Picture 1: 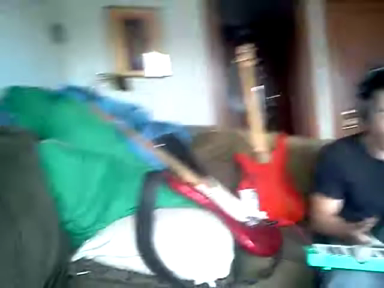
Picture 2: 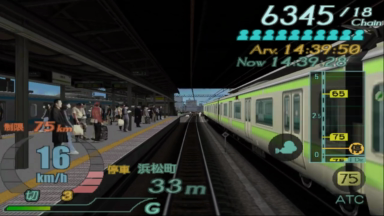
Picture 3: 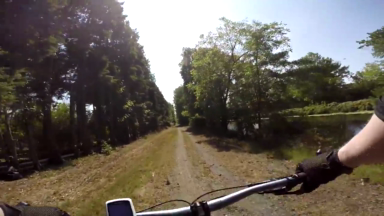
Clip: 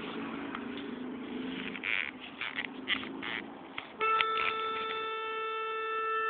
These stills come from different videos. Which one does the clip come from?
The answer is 1